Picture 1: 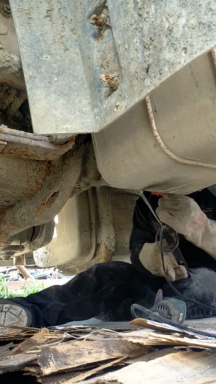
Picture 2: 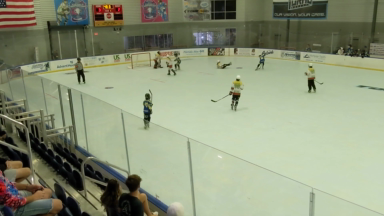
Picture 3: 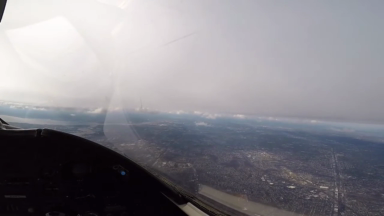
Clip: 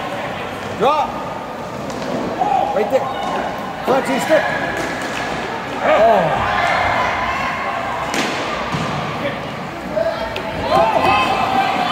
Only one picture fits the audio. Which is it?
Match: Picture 2